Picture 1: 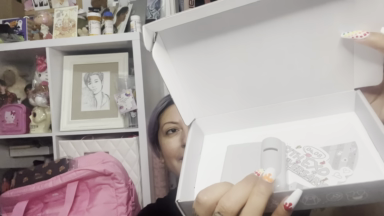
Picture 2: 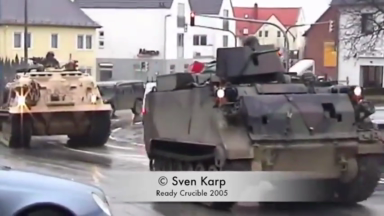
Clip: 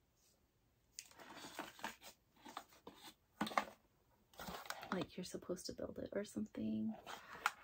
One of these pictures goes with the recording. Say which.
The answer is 1